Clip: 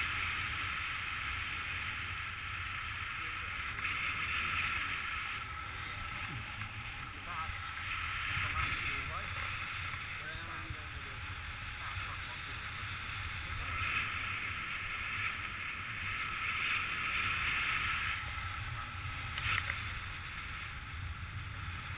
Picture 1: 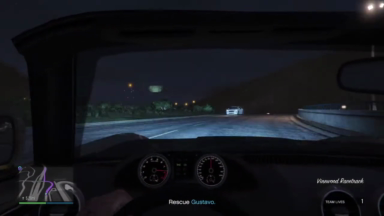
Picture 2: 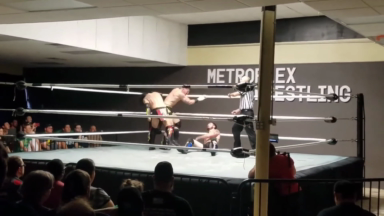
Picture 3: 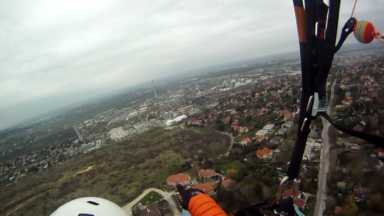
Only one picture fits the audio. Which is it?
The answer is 3